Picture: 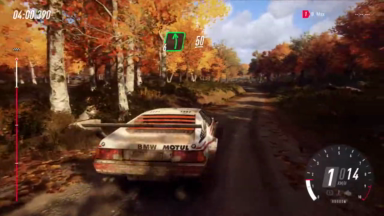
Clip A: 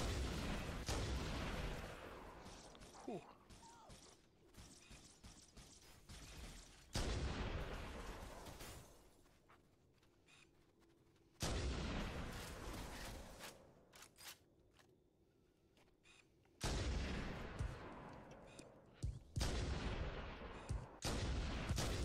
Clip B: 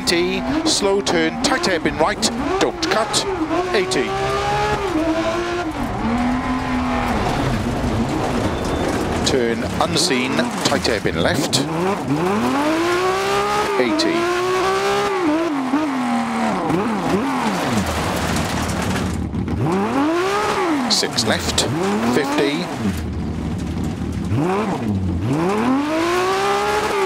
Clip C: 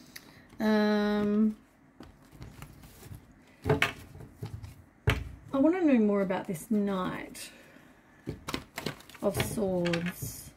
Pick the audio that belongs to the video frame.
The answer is B